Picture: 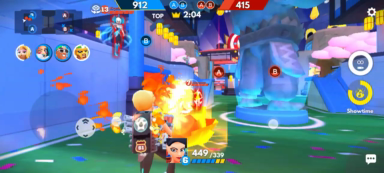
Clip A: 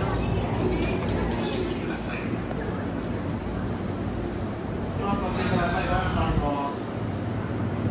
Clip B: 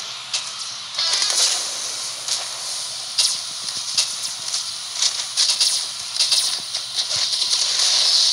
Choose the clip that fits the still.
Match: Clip B